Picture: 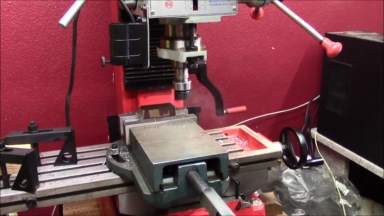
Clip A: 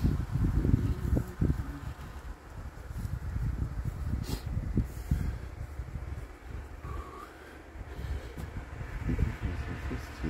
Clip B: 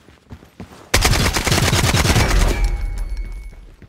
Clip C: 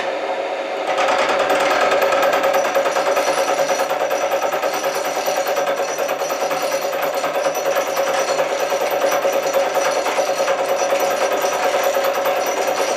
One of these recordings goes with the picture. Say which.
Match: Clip C